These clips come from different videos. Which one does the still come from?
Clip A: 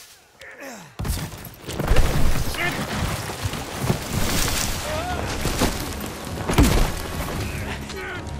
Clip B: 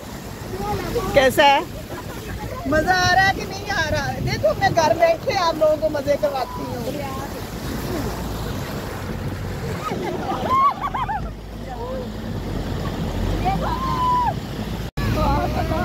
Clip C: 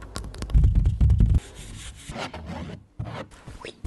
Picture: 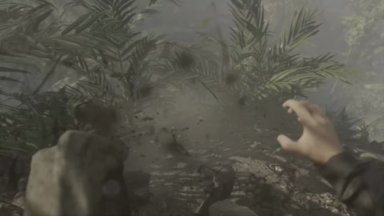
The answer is A